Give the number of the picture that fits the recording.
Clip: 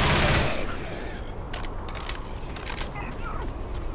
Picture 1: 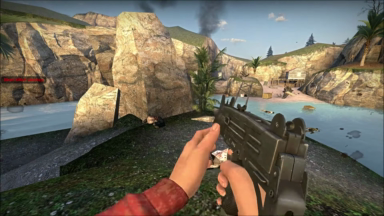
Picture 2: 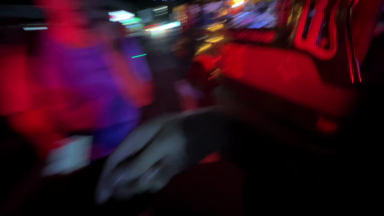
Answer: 1